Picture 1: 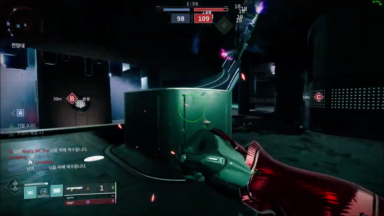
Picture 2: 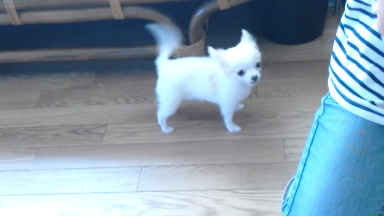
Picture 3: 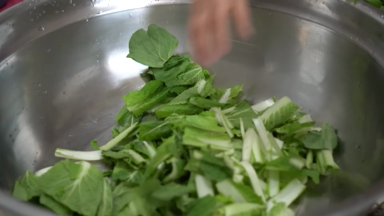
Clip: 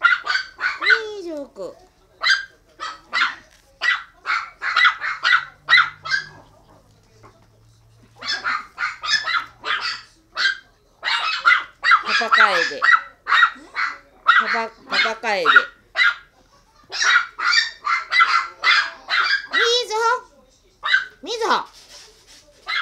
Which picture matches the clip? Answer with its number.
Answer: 2